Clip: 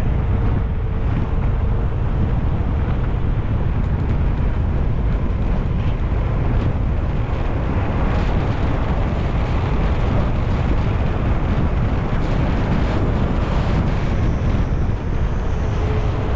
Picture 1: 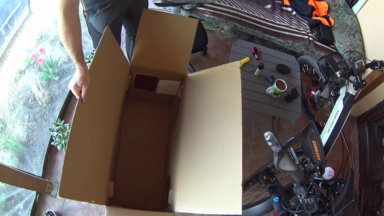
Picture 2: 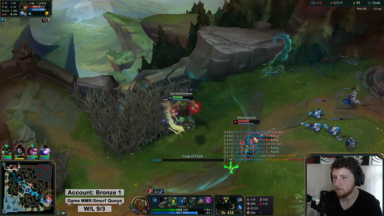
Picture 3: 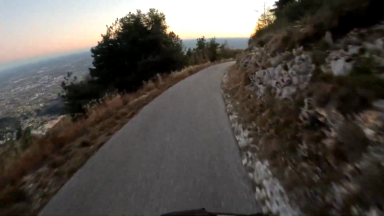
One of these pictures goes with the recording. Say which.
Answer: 3